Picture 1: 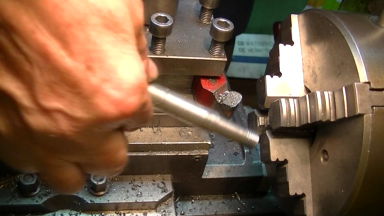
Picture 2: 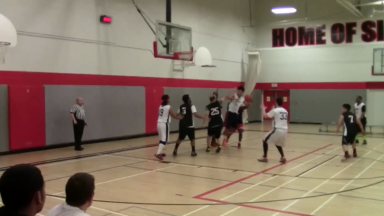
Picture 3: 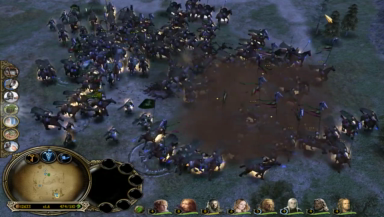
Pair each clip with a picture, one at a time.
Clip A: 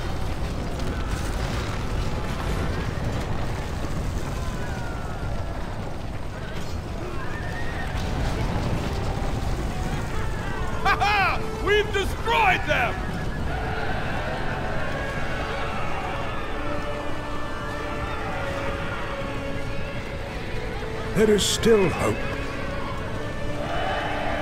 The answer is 3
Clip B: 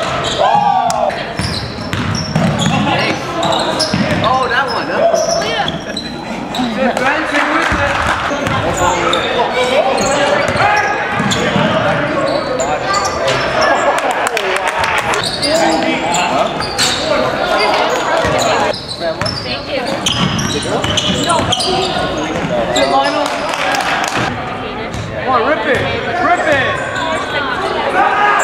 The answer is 2